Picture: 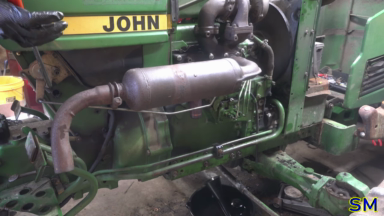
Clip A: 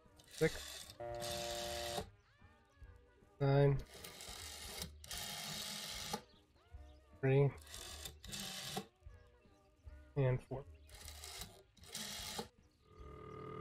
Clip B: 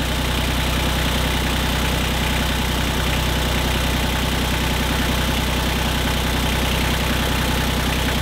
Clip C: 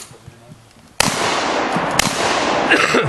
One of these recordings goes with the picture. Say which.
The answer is B